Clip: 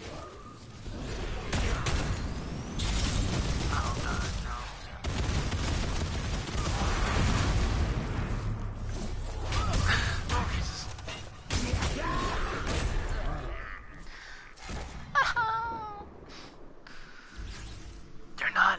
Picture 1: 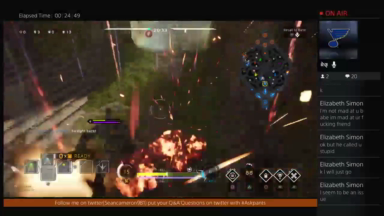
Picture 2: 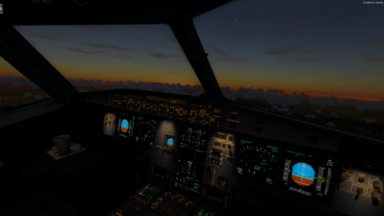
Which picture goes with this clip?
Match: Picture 1